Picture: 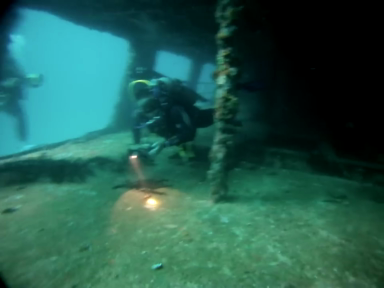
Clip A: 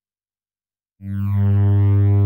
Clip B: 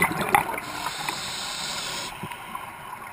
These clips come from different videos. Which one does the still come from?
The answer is B